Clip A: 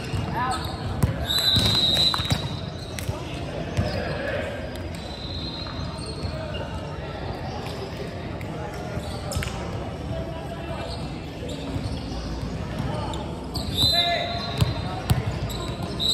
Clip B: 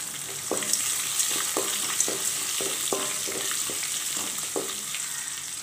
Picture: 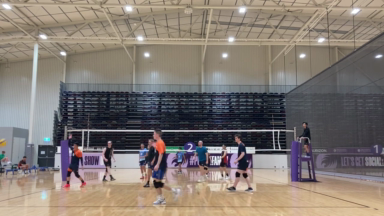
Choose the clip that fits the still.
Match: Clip A